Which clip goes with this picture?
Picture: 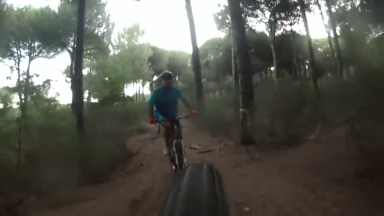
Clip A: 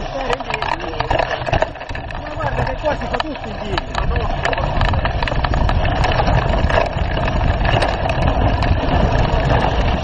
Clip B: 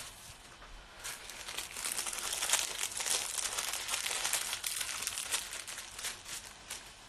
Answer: A